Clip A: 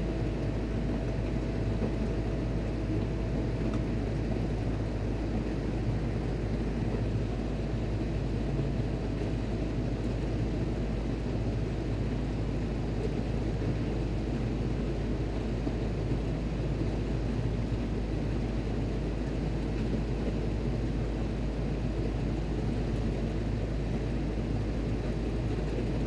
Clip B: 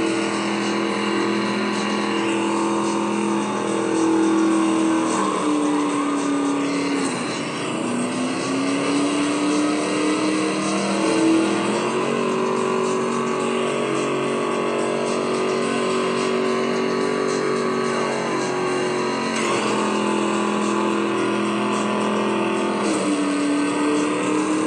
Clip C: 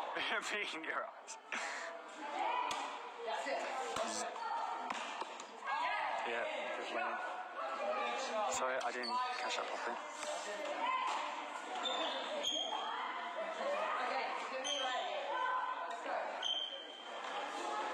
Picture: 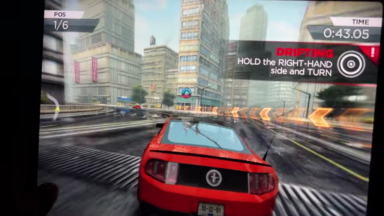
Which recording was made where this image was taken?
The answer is B